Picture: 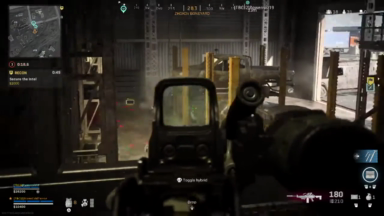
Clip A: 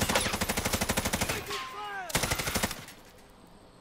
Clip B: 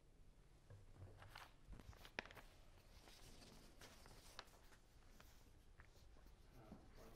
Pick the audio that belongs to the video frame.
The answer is A